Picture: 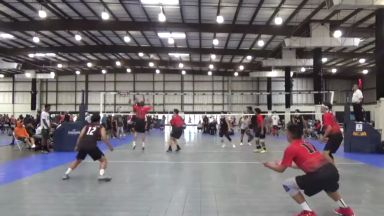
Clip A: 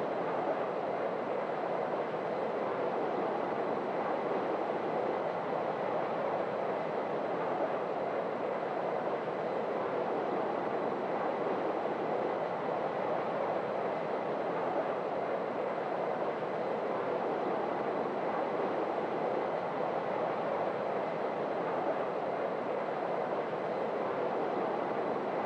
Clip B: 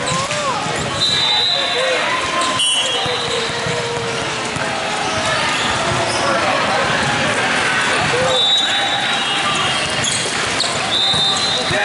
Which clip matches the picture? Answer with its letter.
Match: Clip B